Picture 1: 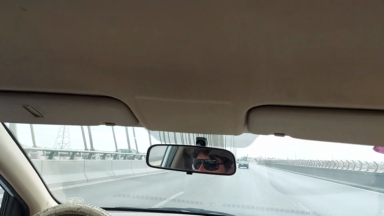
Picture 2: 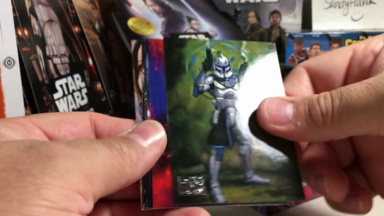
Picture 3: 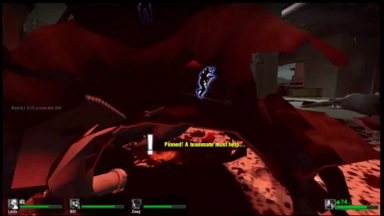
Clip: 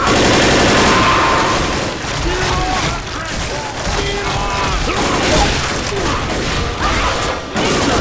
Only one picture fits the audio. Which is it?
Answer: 3